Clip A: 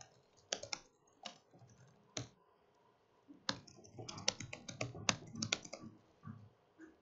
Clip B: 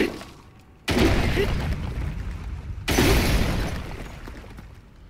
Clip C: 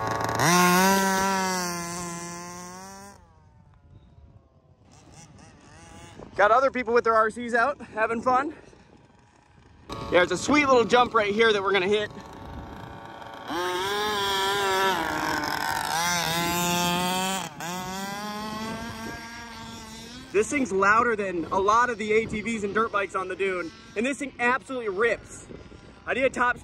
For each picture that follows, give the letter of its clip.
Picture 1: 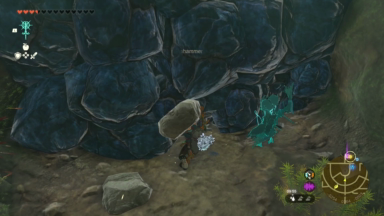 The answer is B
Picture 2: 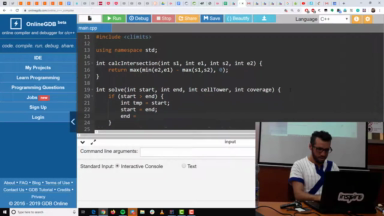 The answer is A